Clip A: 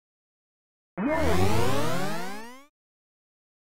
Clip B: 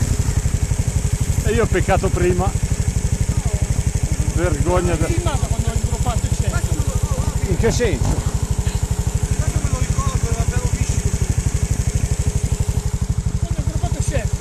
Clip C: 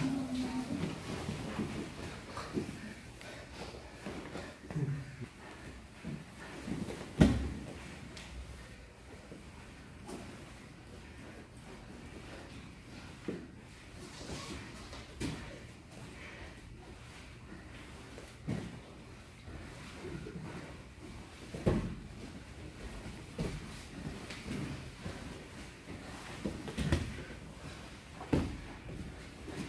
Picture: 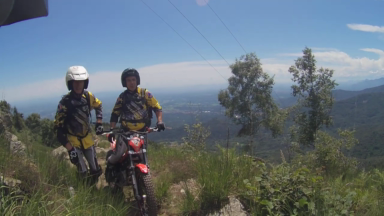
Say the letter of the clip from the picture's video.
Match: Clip B